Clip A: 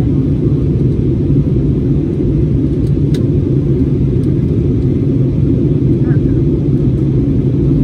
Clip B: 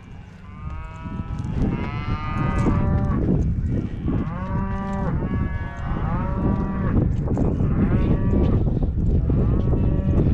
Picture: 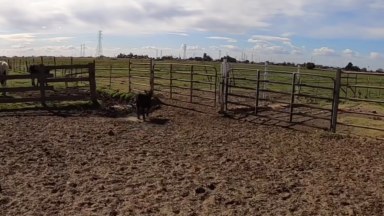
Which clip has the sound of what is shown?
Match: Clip B